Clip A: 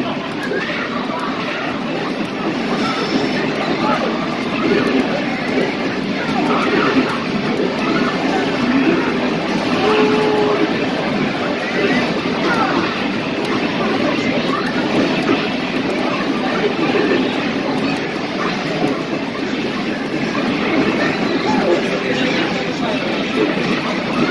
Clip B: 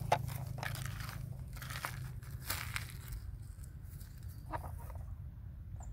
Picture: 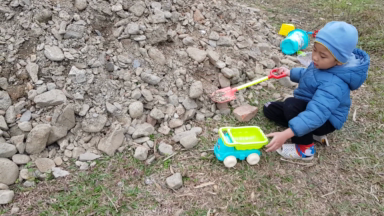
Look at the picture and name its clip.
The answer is B